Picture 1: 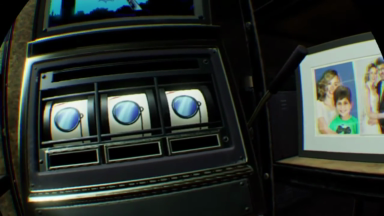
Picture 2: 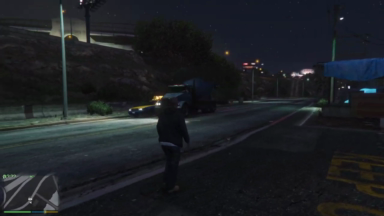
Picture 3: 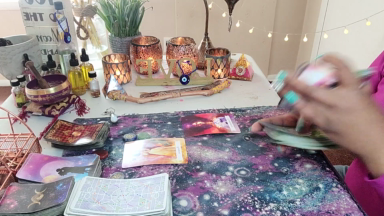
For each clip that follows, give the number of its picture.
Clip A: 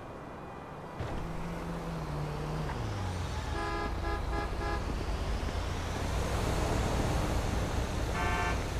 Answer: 2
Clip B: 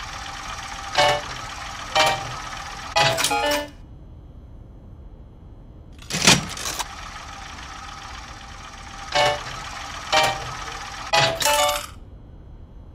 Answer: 1